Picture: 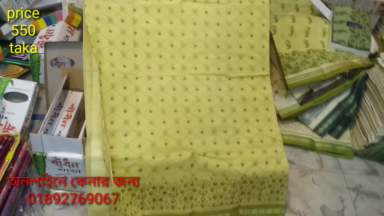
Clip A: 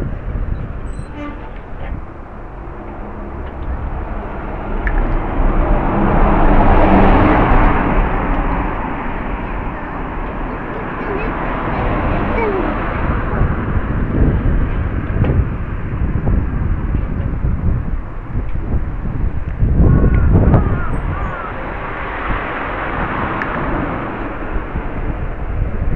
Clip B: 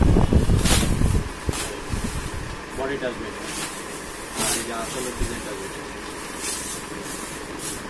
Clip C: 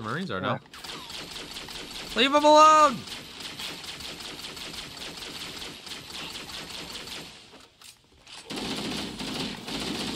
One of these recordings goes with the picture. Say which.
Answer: B